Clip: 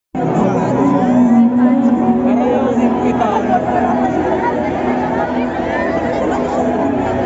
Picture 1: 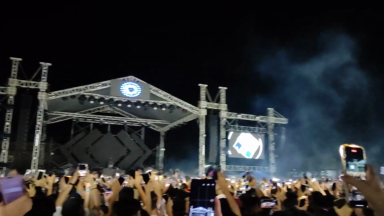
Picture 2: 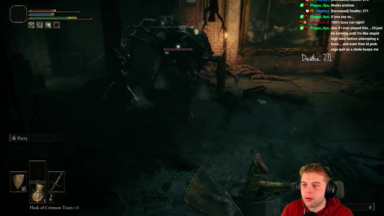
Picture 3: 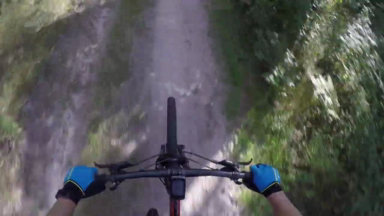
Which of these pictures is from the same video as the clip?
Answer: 1